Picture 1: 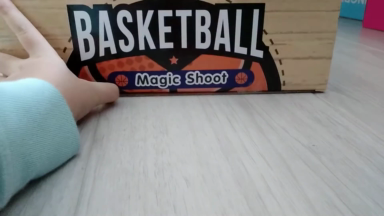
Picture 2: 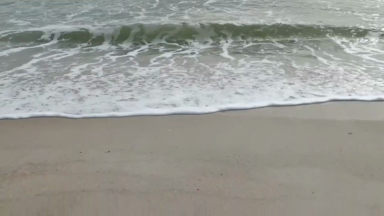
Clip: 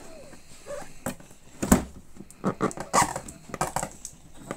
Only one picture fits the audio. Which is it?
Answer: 1